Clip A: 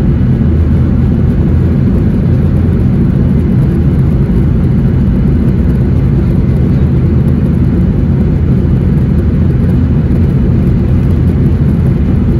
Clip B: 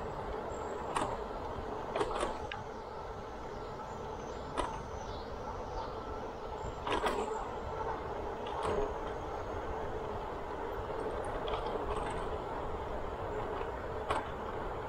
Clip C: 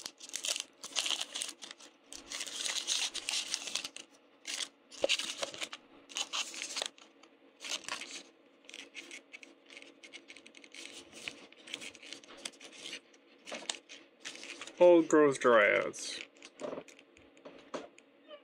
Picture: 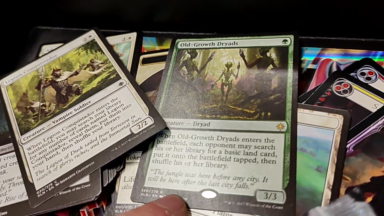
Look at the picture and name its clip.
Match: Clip C